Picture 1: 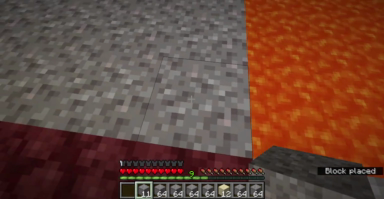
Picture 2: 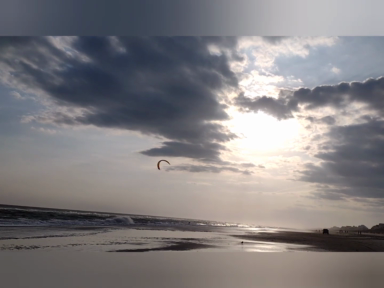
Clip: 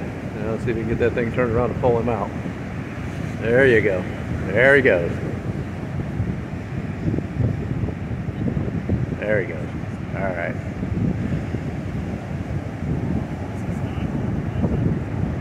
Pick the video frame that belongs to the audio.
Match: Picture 2